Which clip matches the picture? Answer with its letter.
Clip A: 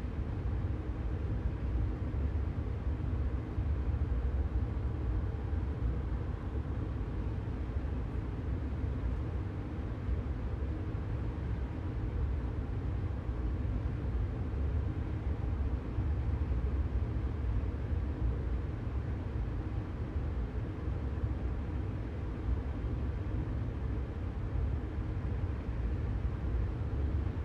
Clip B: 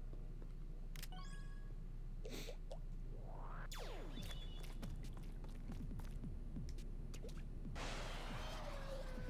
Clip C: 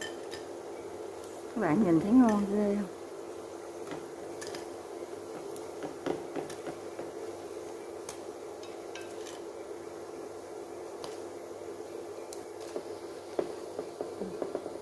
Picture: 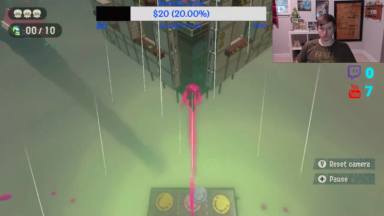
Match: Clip B